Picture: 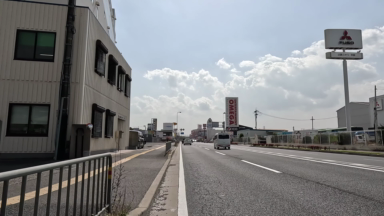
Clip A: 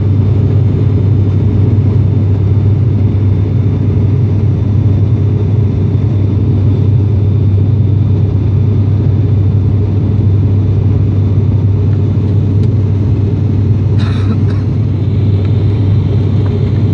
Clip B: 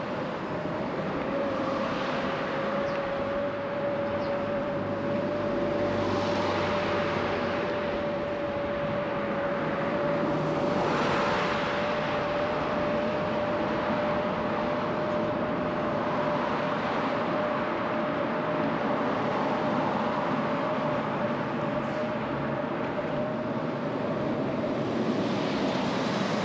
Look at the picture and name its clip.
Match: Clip B